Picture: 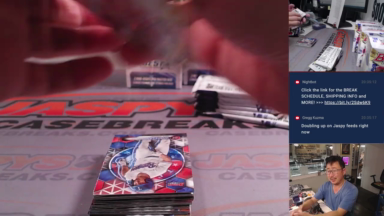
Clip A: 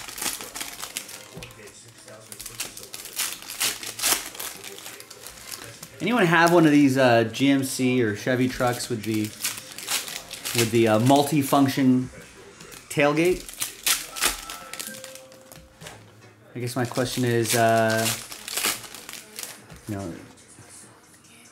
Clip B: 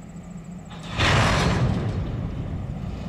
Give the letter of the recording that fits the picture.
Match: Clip A